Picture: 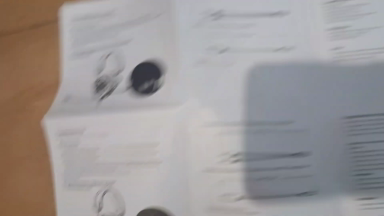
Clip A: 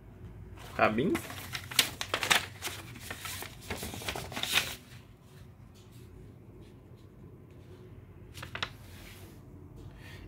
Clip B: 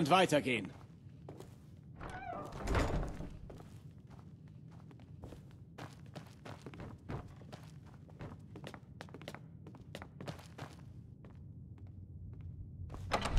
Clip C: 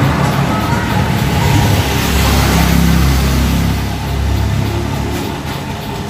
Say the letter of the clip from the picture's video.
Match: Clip A